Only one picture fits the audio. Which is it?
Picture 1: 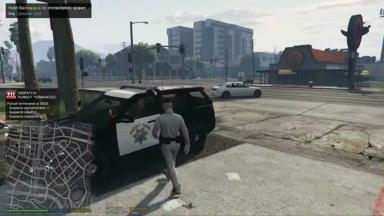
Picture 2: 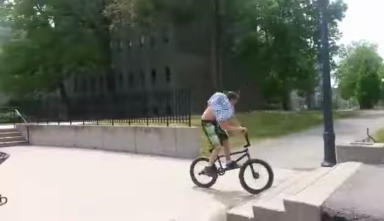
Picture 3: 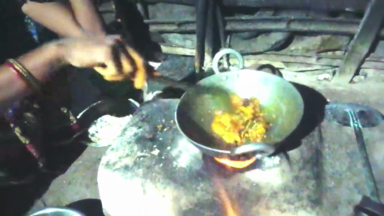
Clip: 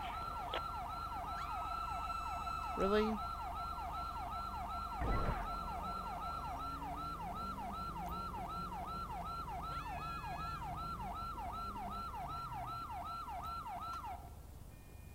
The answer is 1